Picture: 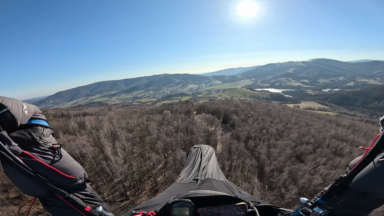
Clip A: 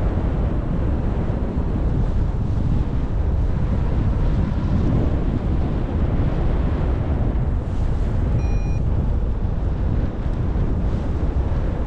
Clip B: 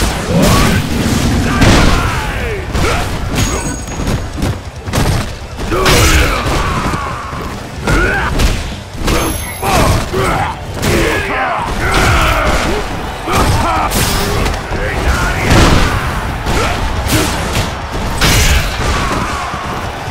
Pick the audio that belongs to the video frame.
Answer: A